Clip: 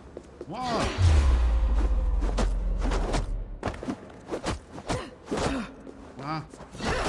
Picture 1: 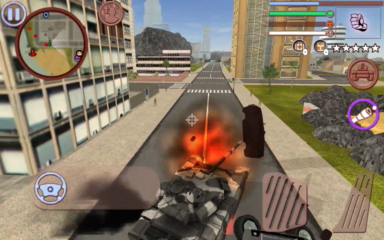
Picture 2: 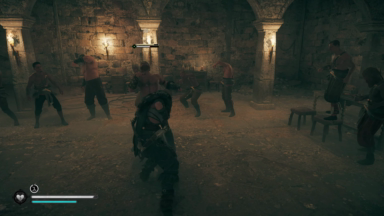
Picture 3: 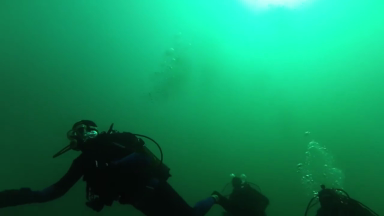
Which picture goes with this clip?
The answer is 2